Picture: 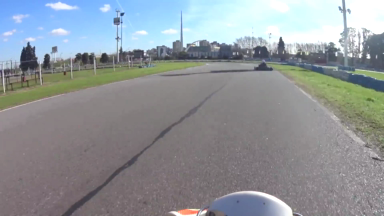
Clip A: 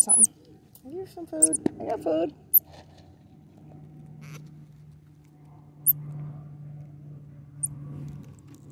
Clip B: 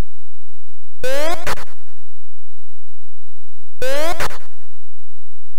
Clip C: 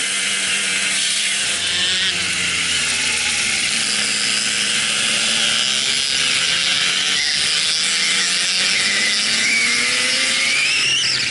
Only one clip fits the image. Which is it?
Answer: C